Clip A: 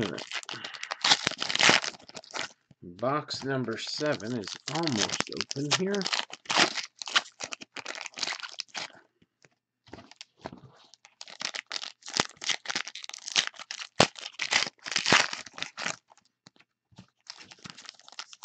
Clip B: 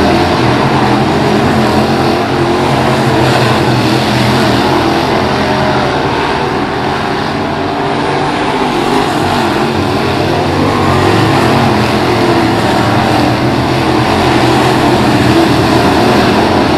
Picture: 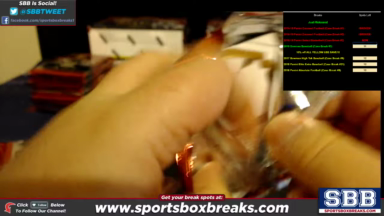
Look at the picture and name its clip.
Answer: A